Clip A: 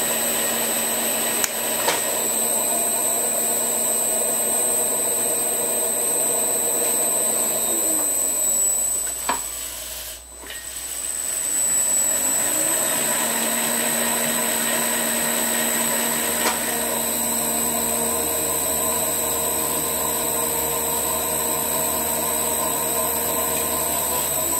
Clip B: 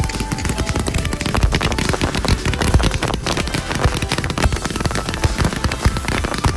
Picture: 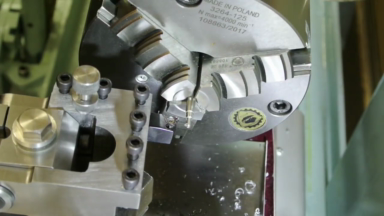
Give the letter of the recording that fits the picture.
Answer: A